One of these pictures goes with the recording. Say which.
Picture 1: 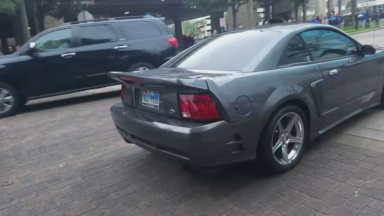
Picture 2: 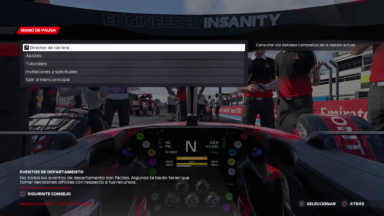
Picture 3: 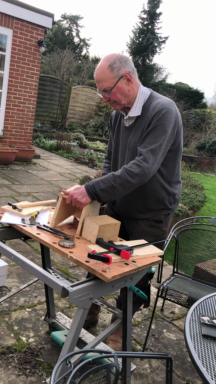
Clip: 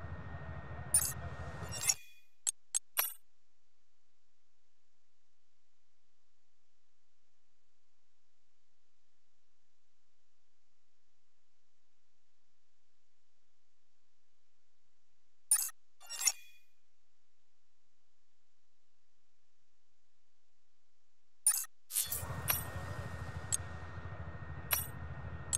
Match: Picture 2